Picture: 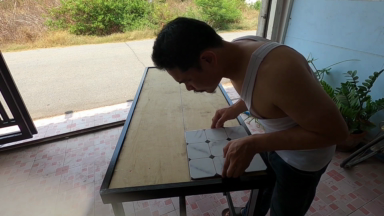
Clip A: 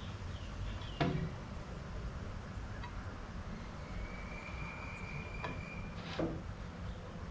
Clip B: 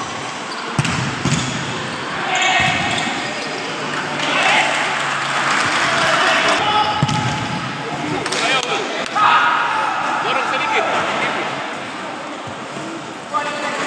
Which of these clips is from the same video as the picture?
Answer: A